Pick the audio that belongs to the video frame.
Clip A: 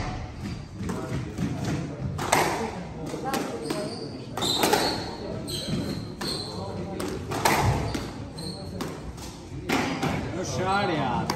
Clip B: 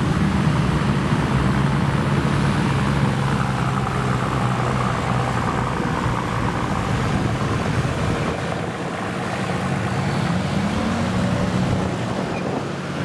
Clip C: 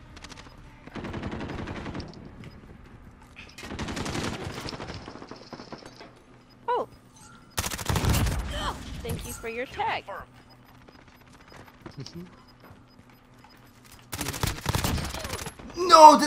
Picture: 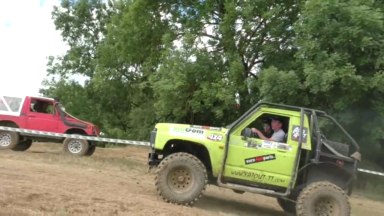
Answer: B